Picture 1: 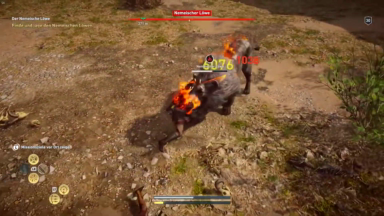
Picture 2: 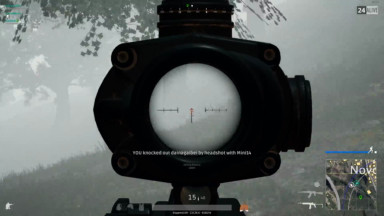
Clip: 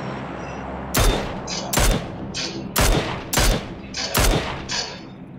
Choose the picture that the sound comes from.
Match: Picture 2